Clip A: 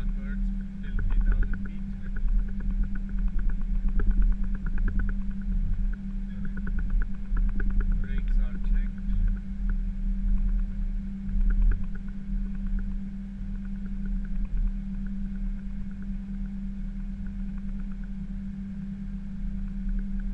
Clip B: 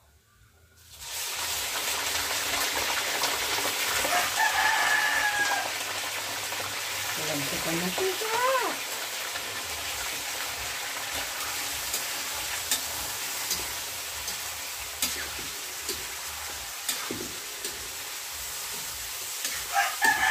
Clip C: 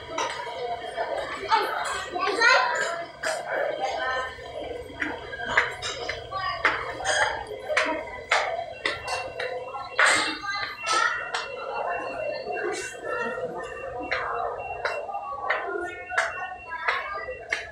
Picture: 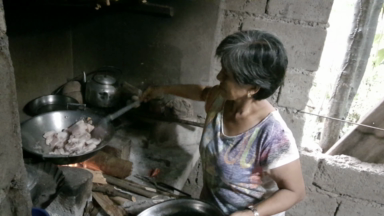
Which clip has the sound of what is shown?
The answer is B